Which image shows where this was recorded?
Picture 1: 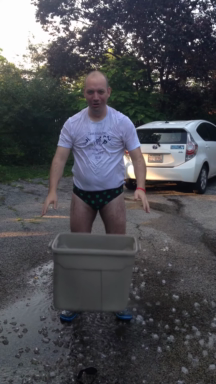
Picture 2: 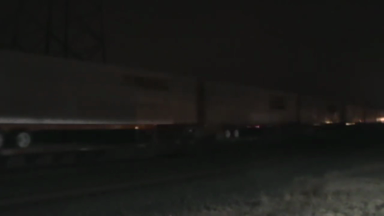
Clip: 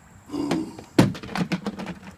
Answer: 1